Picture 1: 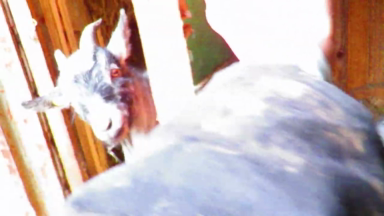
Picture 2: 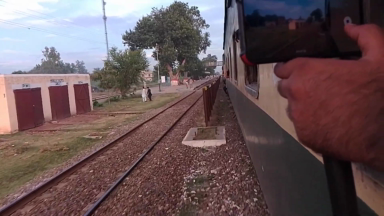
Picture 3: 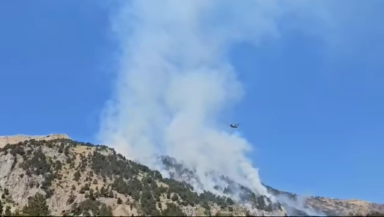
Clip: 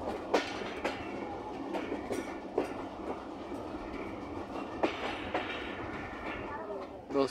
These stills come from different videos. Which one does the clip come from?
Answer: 2